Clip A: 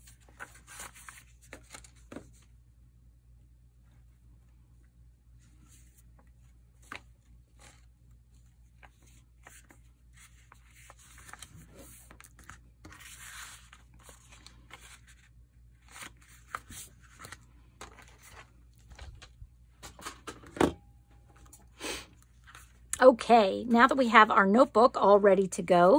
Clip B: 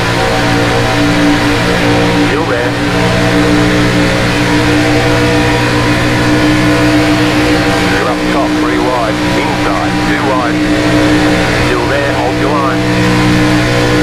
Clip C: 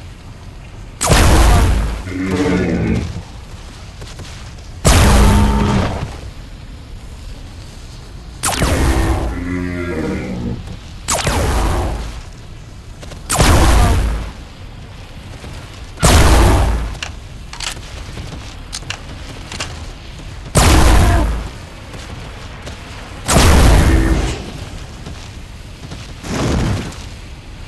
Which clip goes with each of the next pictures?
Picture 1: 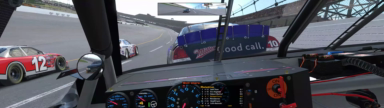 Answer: B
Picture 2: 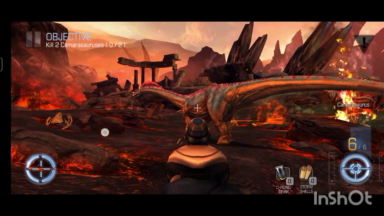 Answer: C